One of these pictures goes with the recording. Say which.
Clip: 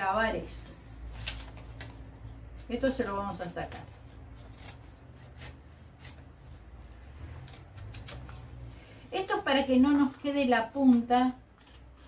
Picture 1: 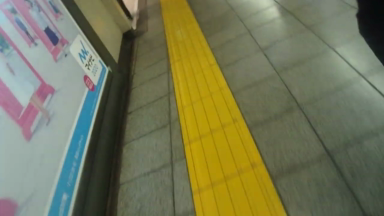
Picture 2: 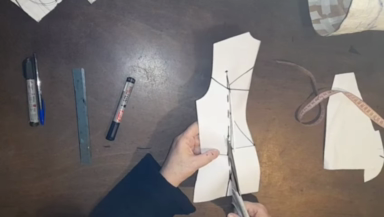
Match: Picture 2